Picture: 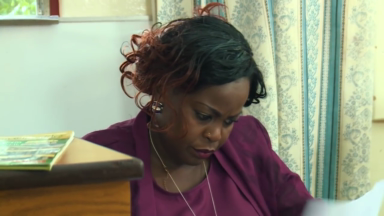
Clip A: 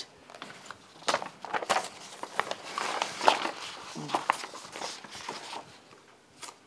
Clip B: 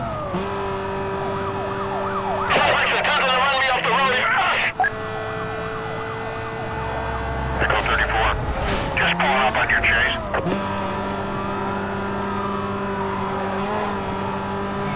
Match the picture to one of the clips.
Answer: A